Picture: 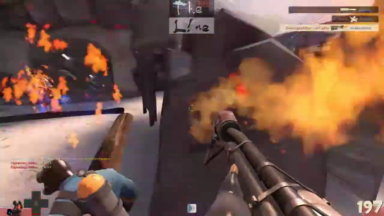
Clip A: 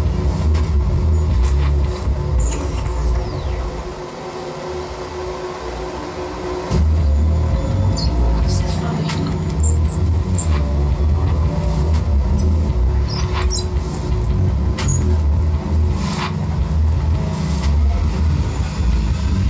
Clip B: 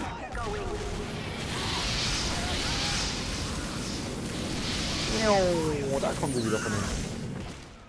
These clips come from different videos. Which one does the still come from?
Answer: B